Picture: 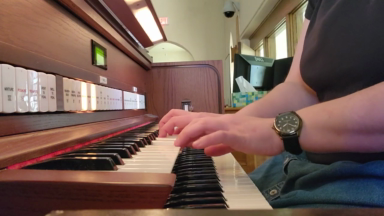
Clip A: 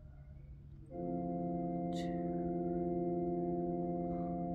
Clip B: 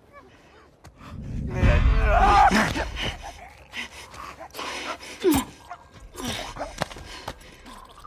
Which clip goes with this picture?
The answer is A